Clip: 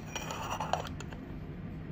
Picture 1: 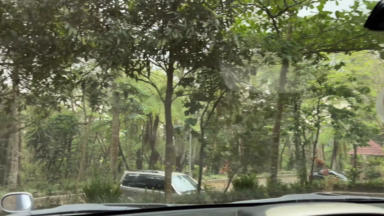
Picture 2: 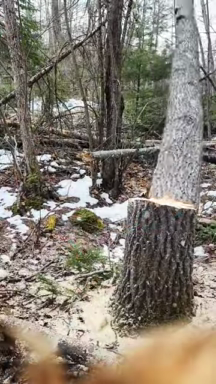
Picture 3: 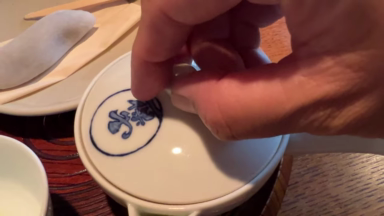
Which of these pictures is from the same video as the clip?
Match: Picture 3